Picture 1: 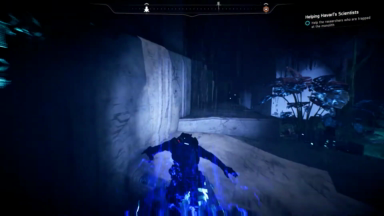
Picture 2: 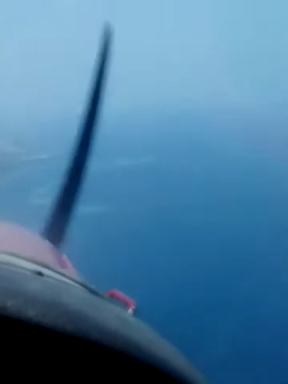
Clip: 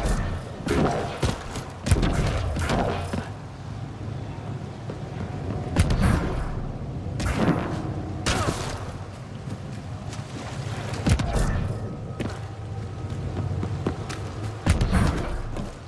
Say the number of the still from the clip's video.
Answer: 1